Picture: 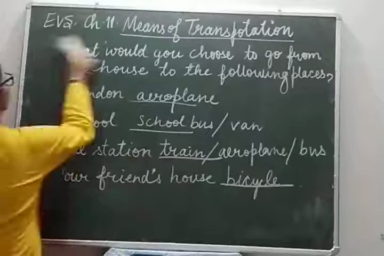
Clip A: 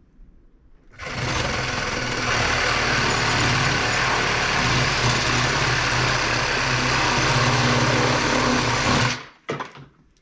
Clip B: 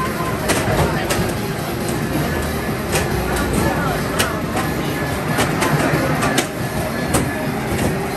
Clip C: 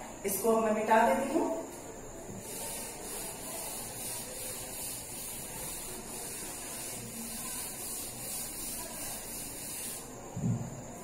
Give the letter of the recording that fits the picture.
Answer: C